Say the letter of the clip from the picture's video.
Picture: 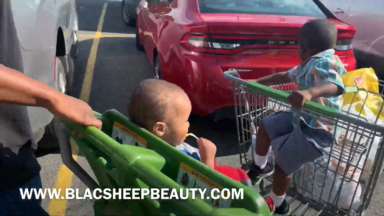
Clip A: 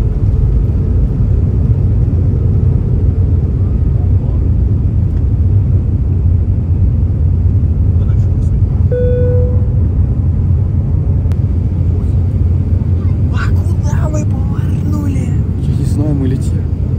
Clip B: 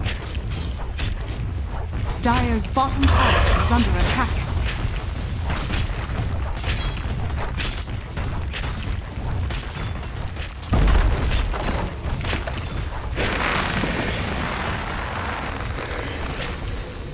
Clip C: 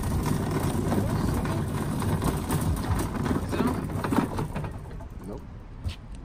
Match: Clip C